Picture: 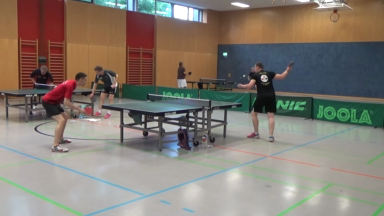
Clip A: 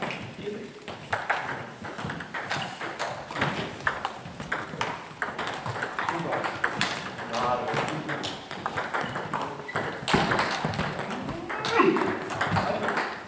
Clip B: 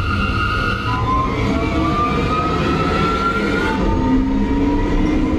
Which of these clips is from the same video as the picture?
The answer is A